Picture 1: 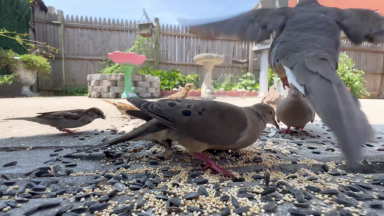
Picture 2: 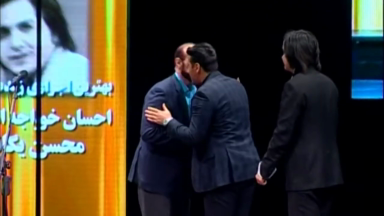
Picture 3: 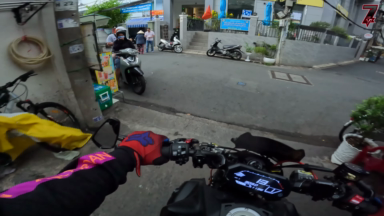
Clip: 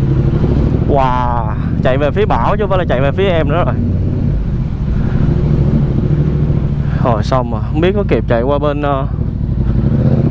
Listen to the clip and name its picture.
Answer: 3